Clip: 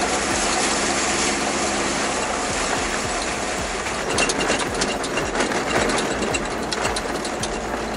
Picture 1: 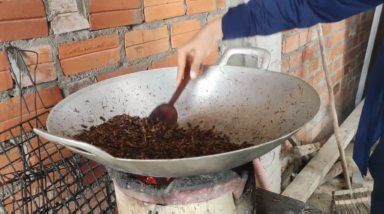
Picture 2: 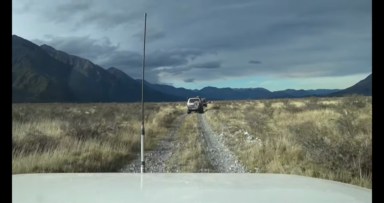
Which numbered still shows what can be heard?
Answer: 2